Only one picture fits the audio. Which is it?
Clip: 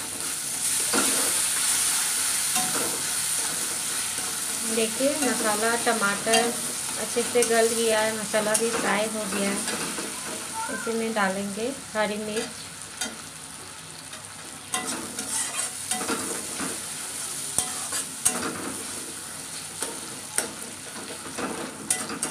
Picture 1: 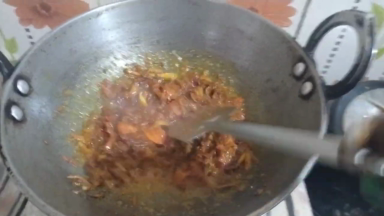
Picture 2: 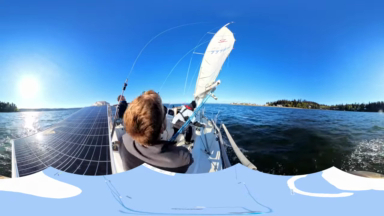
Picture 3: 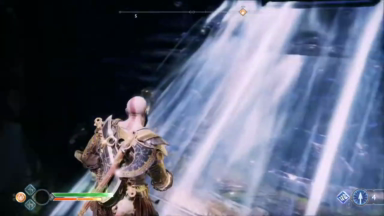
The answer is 1